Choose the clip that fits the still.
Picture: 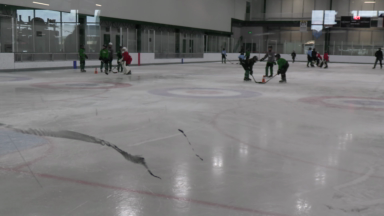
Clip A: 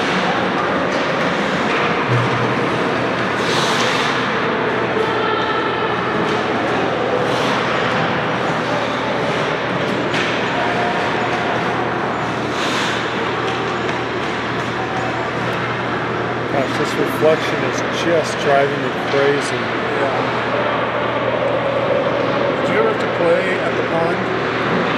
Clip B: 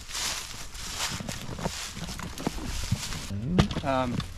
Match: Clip A